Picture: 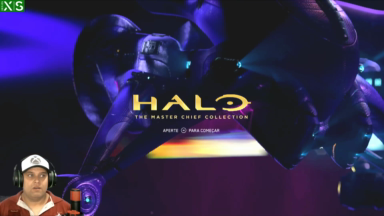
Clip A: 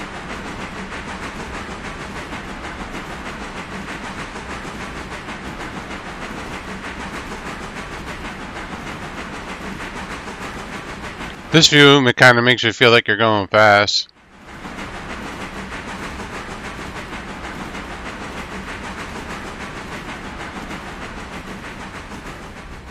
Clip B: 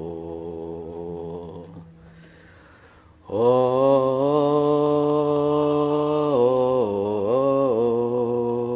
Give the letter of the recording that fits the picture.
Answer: B